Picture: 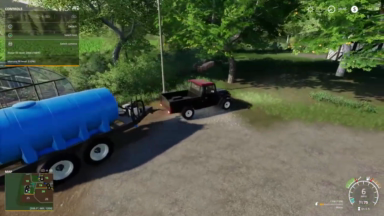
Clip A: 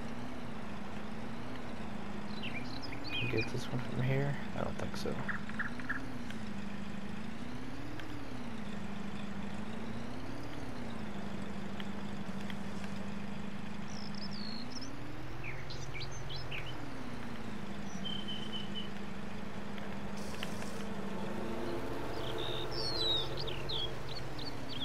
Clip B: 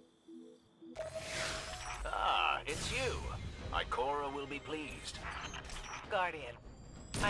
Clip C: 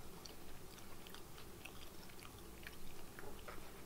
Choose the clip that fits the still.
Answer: A